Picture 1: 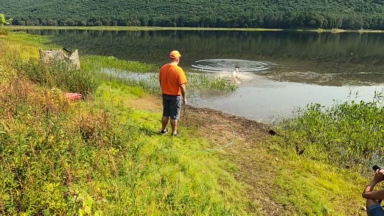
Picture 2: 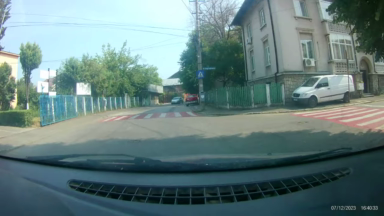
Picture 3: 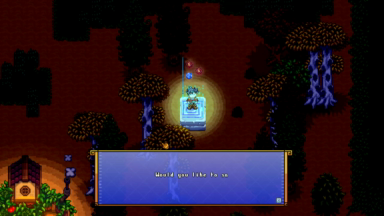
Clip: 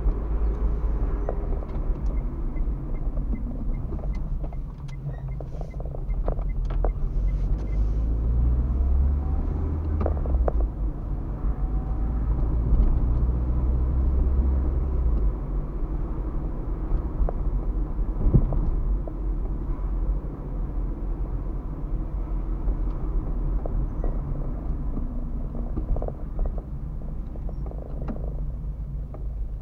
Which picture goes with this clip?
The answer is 2